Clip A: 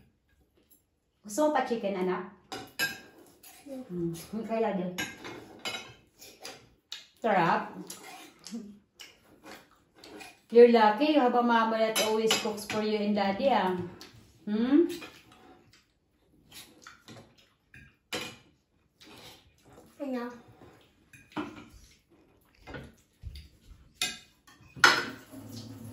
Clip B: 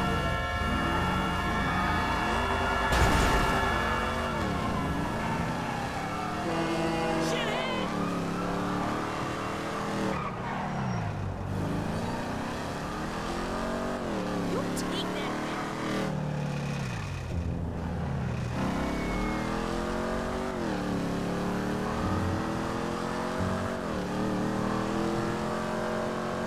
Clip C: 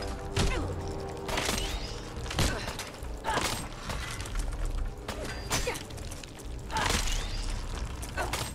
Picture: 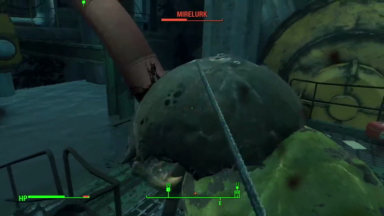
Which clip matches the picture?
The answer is C